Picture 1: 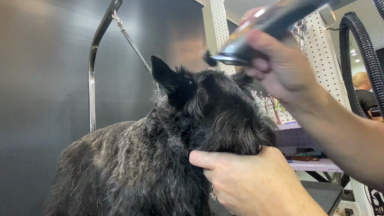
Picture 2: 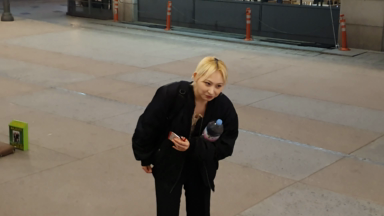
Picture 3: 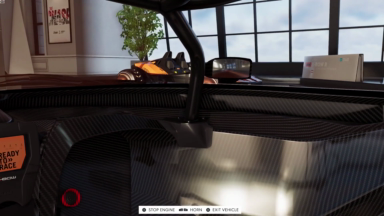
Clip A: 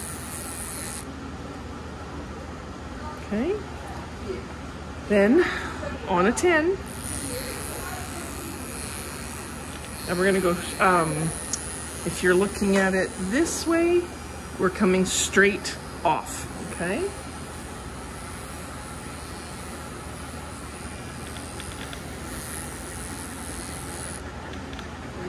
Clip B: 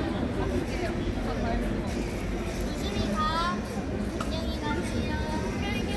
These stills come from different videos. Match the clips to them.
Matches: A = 1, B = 2